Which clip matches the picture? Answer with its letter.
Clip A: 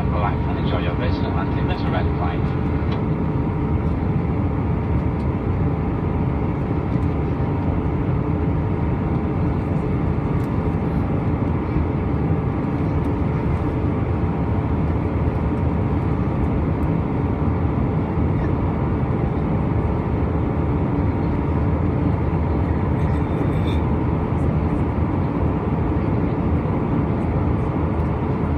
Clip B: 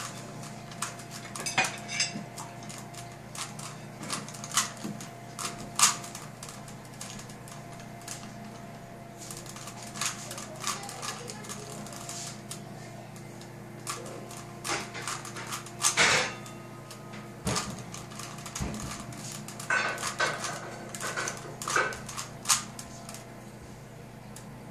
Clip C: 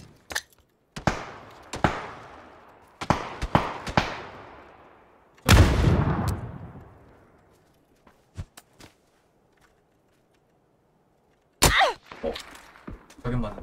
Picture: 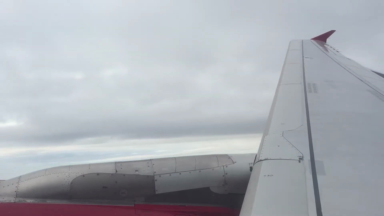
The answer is A